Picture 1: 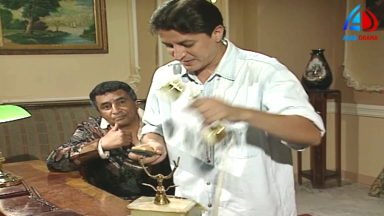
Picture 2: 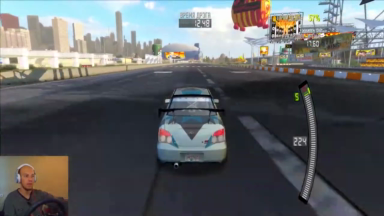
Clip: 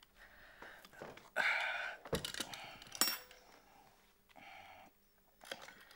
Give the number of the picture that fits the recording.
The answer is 1